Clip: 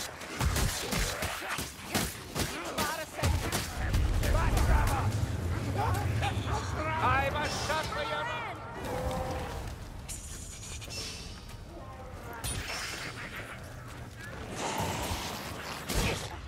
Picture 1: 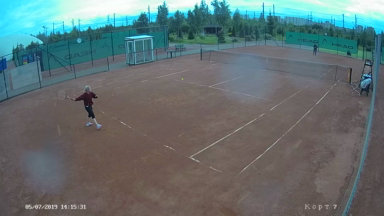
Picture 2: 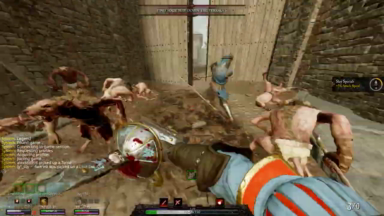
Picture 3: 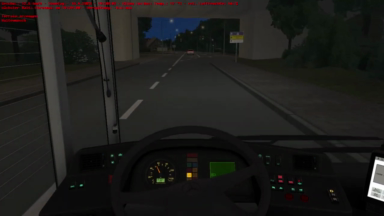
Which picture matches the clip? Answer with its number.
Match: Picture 2